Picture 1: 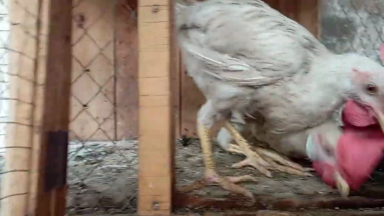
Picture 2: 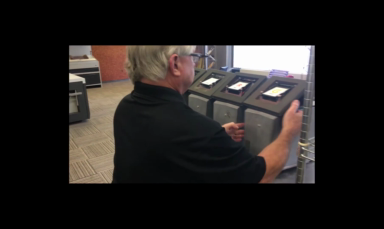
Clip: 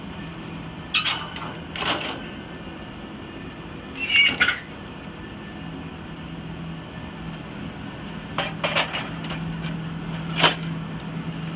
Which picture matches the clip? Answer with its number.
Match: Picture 2